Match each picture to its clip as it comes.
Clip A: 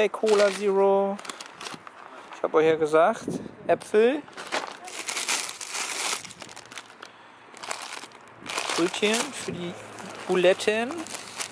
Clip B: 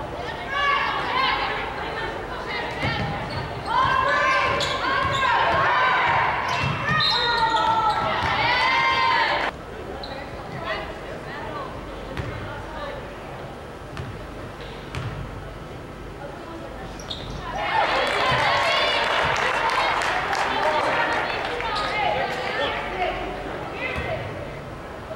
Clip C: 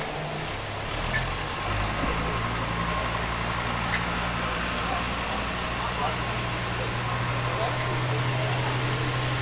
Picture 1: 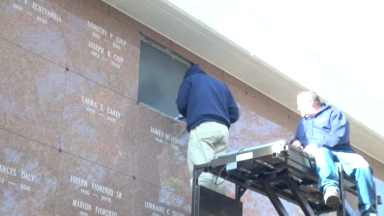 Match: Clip C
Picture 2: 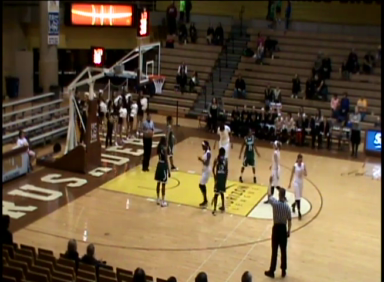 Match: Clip B